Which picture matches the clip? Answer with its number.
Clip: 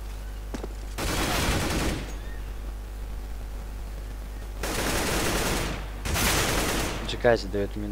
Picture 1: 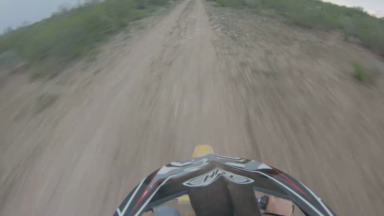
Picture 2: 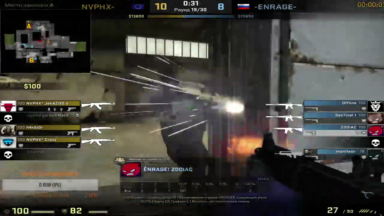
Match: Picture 2